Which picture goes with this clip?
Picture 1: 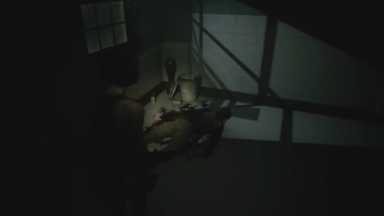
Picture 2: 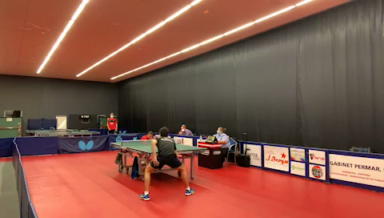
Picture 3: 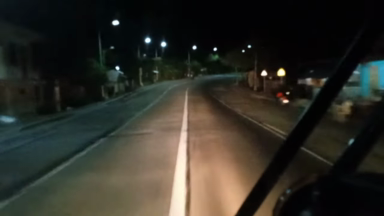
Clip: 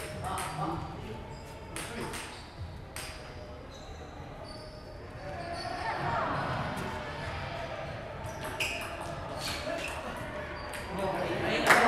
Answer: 2